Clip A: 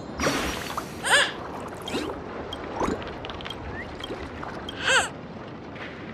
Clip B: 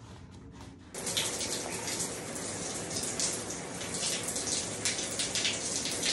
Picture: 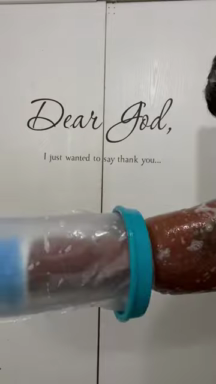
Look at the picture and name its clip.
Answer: B